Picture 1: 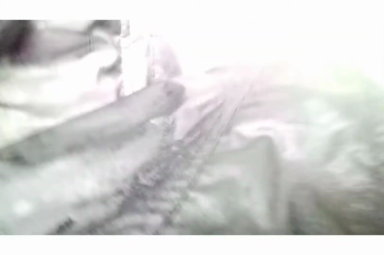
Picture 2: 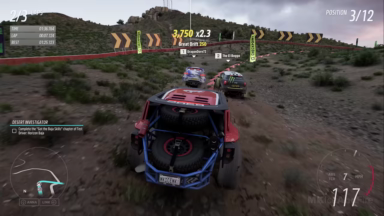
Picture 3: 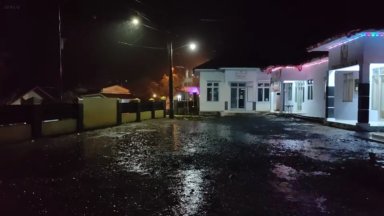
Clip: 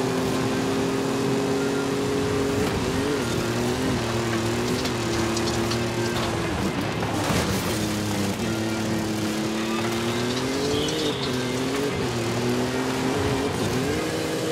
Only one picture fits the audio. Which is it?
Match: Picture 2